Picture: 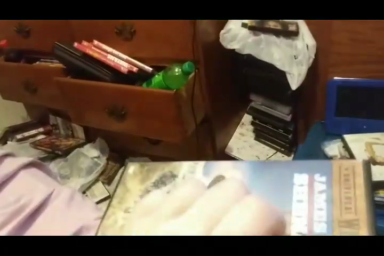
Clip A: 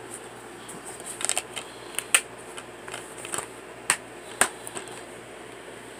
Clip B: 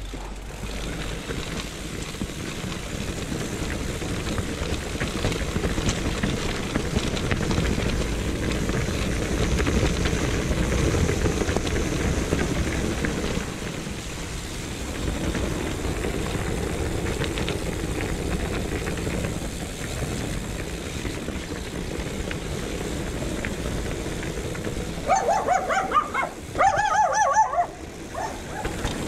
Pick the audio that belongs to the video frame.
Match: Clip A